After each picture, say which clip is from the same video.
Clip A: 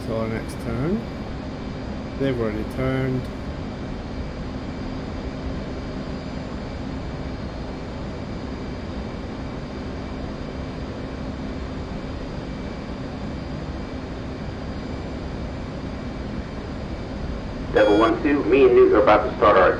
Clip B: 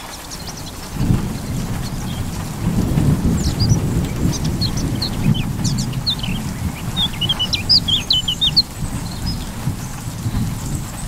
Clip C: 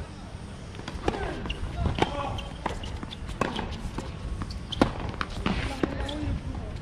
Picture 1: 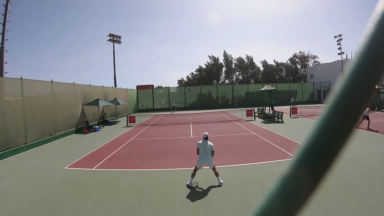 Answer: C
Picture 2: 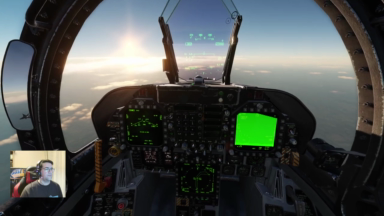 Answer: A